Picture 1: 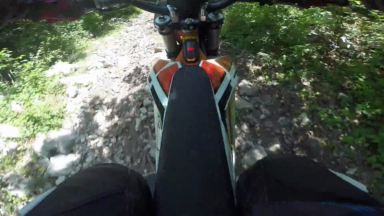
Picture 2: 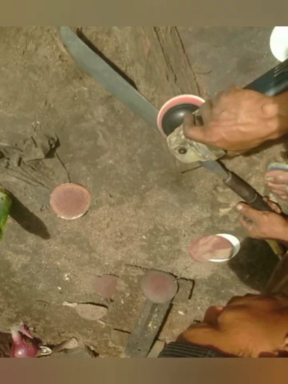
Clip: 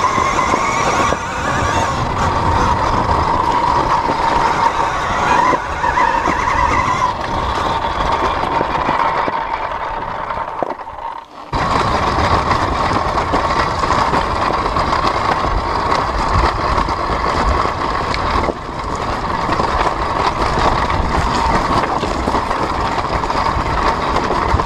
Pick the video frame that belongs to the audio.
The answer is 1